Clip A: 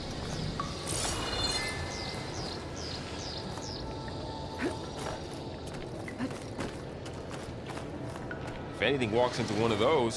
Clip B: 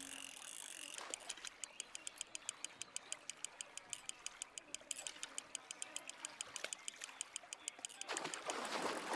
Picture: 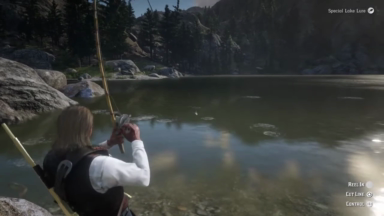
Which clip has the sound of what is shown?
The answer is B